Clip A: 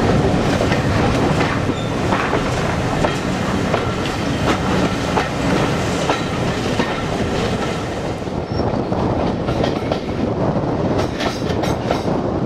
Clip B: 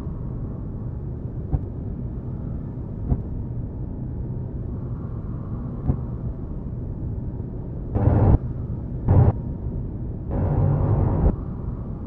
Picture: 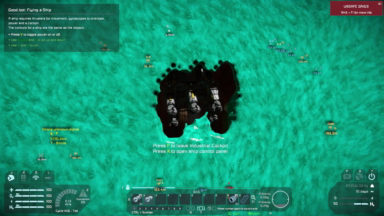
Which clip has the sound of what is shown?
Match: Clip B